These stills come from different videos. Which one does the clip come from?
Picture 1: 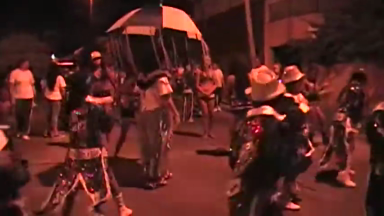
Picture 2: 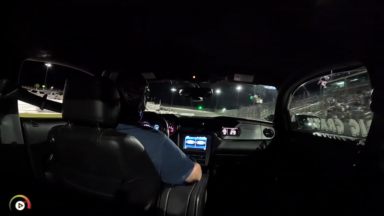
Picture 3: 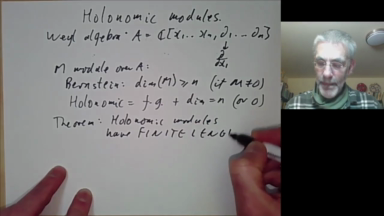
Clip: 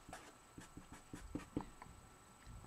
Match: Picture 3